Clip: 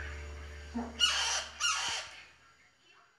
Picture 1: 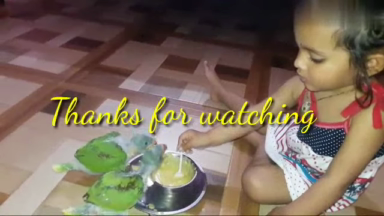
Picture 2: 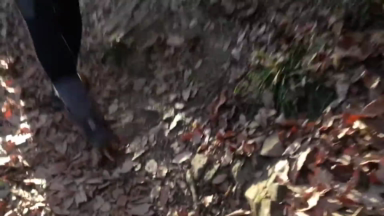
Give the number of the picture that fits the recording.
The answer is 1